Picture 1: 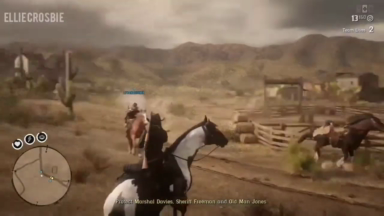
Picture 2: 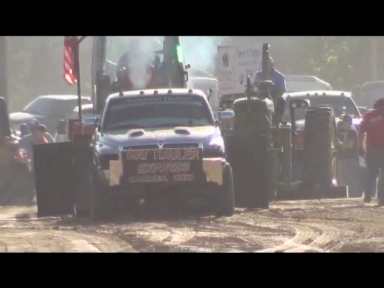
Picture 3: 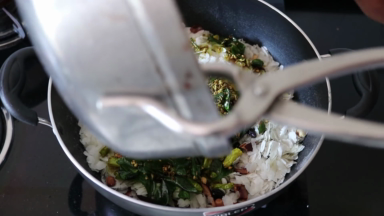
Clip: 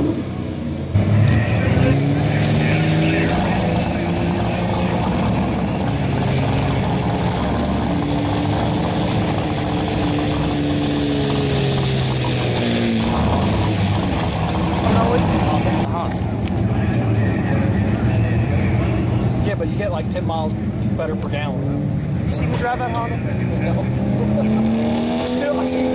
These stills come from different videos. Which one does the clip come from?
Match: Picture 2